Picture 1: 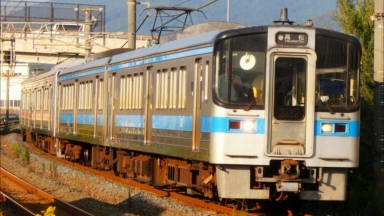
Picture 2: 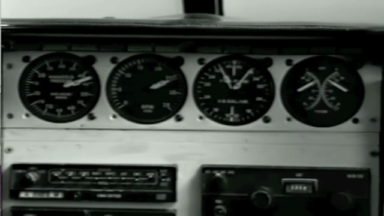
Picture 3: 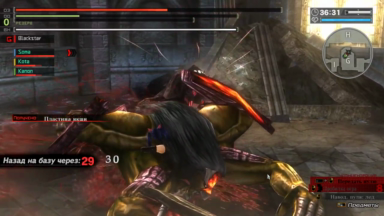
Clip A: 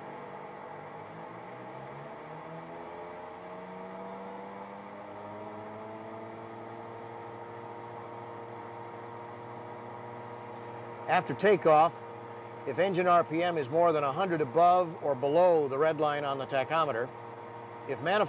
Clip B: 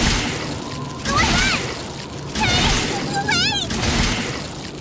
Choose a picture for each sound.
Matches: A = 2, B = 3